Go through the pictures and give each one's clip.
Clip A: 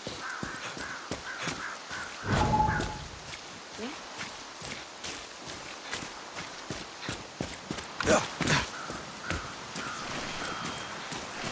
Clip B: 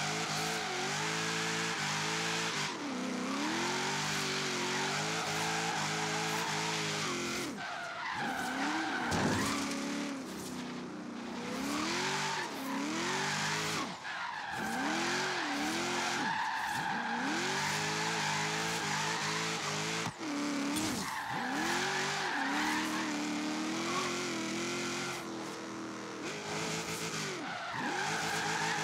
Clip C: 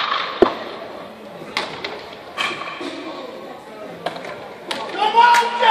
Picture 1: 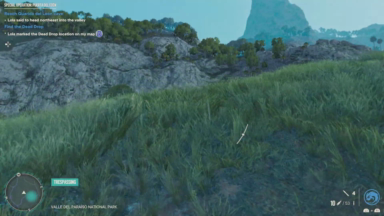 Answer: A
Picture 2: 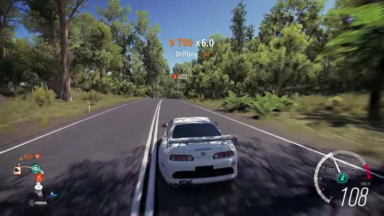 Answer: B